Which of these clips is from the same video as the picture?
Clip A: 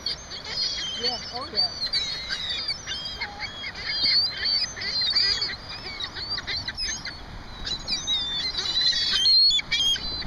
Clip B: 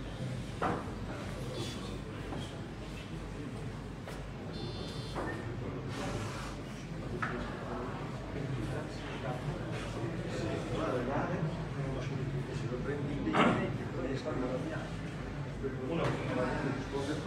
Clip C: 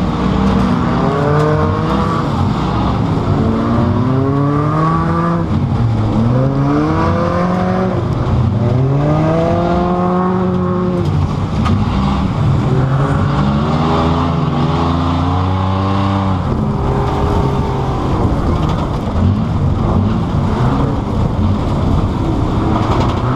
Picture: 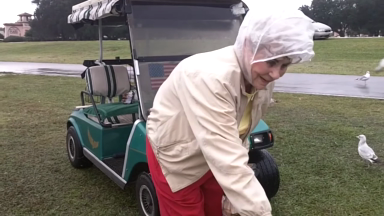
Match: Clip A